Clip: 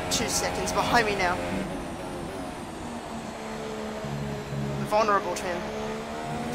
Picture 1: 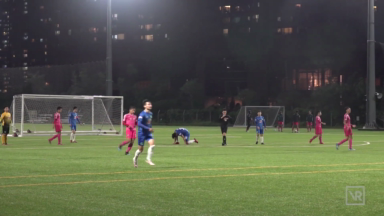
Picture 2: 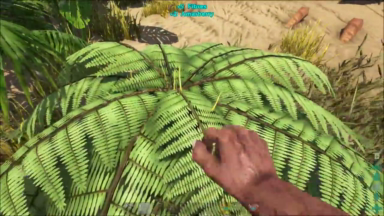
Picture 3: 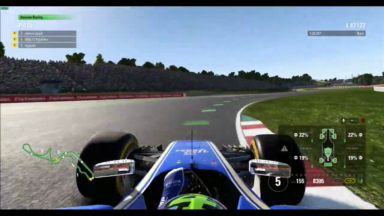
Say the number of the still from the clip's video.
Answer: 3